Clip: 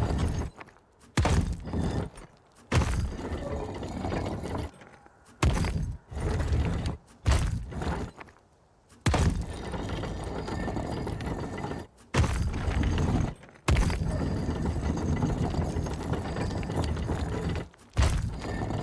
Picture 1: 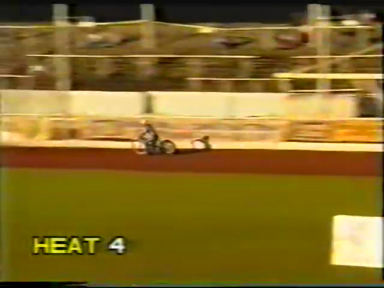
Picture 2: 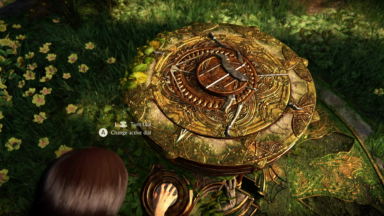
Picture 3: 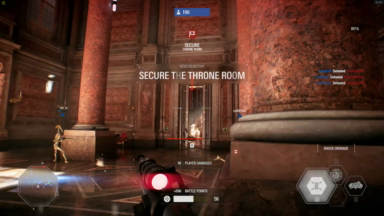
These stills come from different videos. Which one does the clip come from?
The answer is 2